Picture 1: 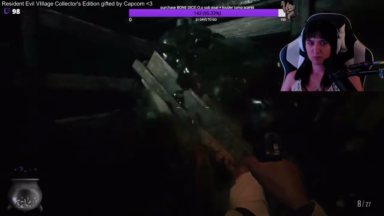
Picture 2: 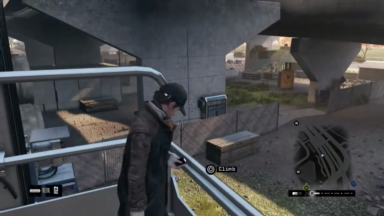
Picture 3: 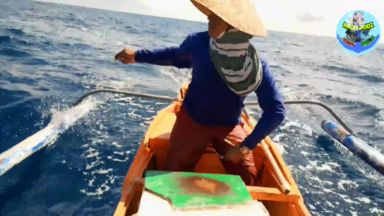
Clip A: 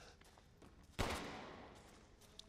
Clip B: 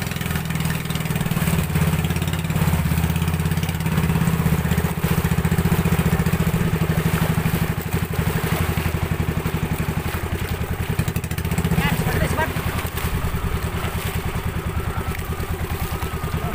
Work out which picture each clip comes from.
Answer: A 1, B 3